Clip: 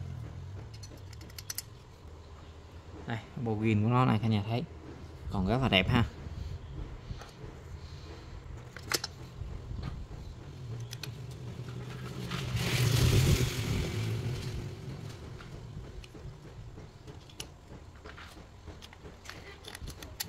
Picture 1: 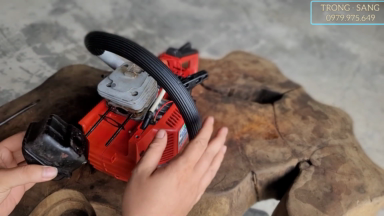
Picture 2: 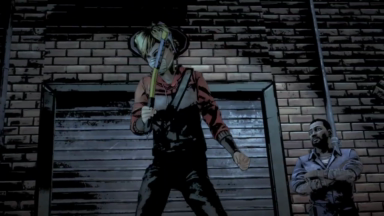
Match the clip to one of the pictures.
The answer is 1